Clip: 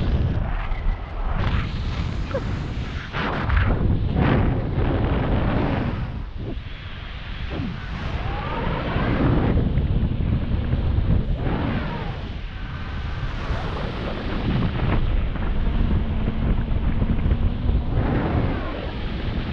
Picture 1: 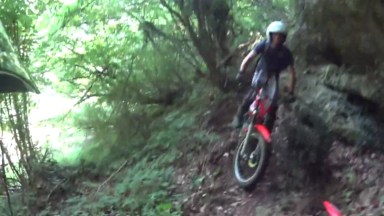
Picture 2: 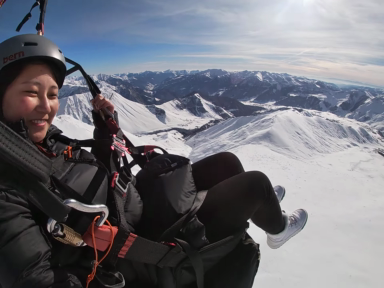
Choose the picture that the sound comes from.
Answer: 2